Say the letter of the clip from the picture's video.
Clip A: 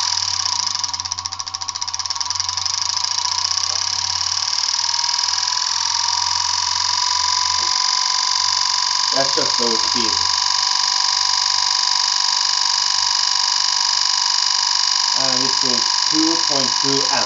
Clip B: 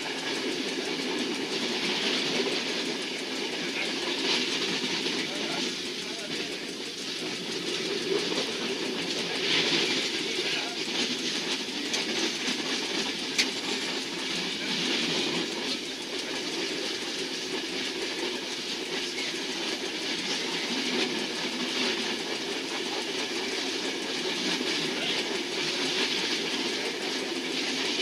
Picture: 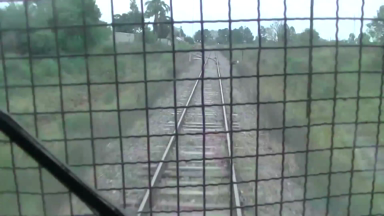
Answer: B